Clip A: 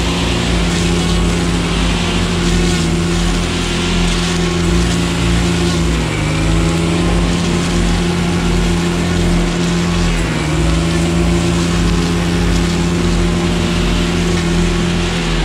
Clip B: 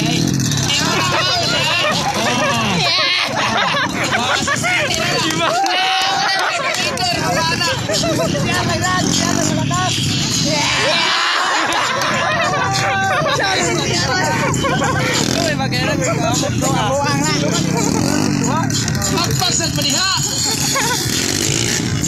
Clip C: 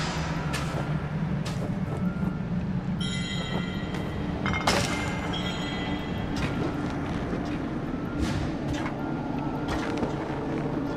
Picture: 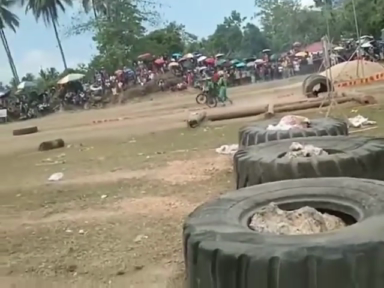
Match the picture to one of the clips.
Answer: B